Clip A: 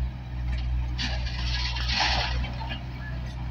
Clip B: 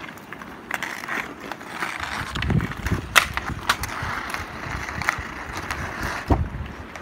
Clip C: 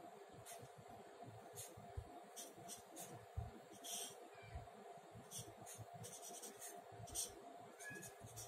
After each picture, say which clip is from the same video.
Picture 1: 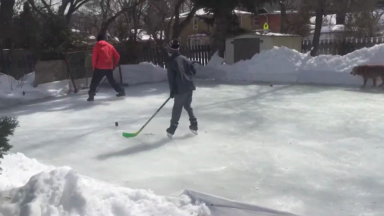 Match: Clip B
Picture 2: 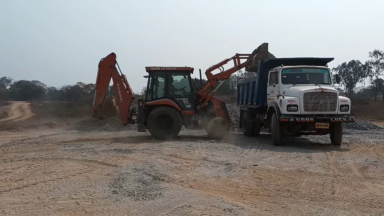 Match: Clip A